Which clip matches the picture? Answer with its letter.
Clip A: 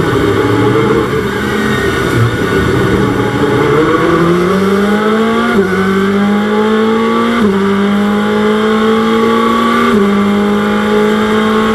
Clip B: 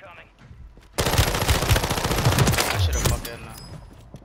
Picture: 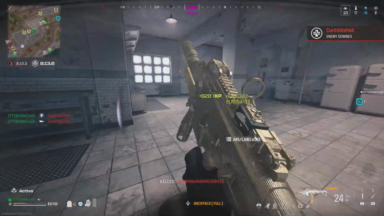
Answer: B